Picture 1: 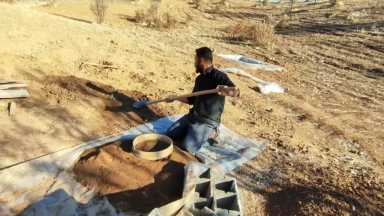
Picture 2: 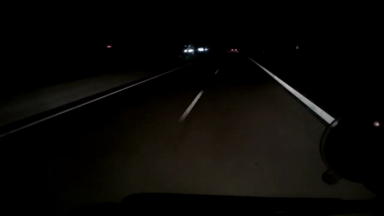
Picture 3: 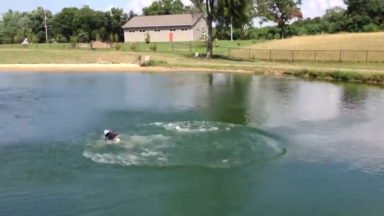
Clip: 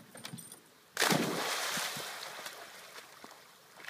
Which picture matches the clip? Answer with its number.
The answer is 3